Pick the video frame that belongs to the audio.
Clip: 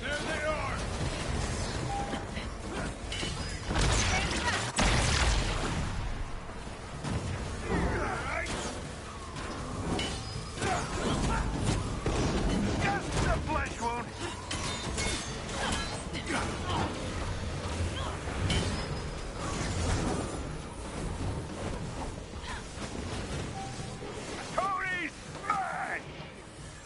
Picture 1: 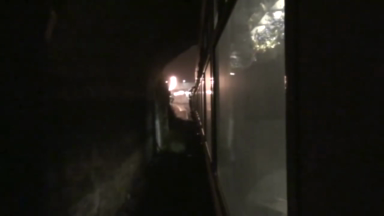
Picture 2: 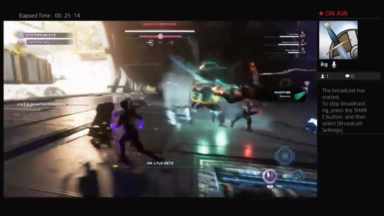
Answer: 2